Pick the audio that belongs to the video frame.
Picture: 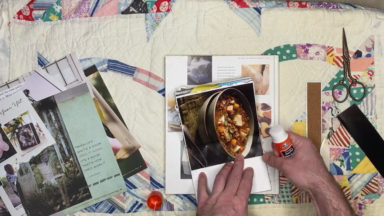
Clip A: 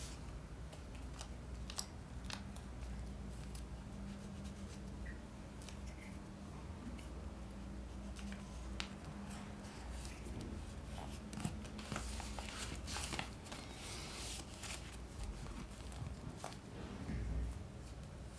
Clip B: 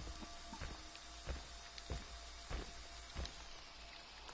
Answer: A